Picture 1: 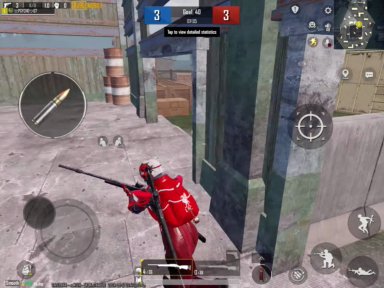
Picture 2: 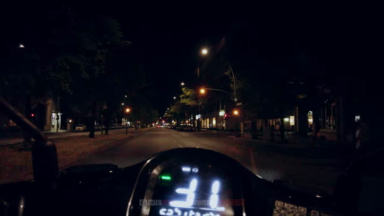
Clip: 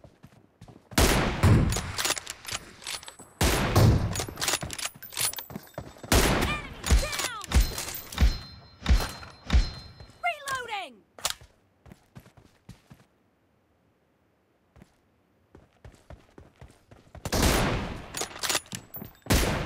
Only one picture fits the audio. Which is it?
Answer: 1